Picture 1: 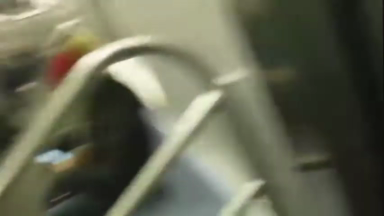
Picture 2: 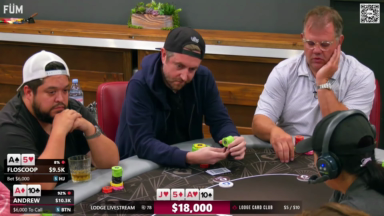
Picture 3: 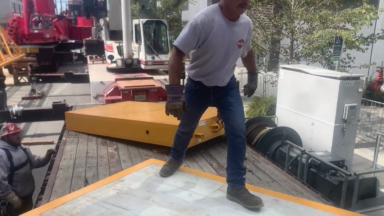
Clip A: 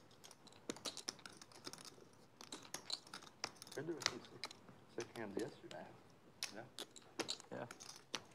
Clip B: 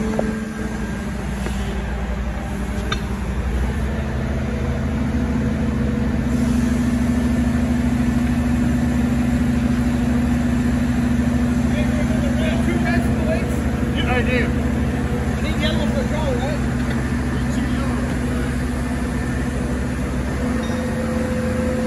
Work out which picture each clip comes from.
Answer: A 2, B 3